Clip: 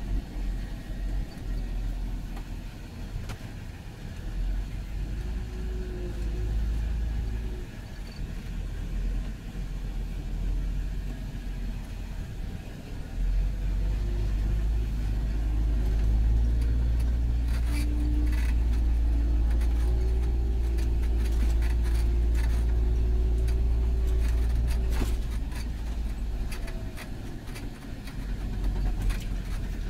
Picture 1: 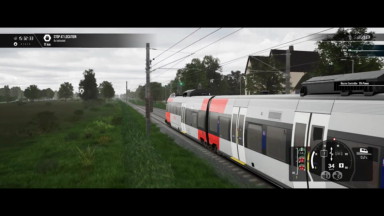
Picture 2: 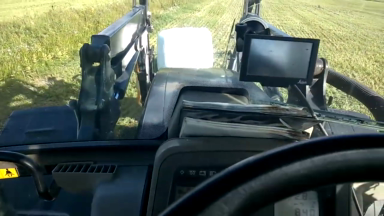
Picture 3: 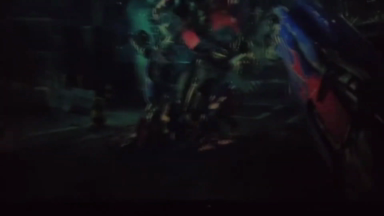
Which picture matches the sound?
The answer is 2